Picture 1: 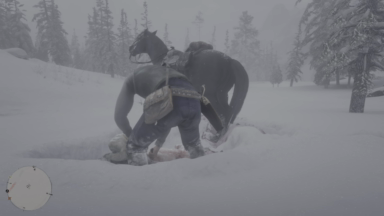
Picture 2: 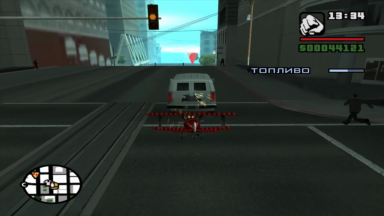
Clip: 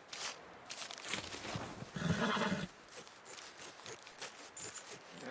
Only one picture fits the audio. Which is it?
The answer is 1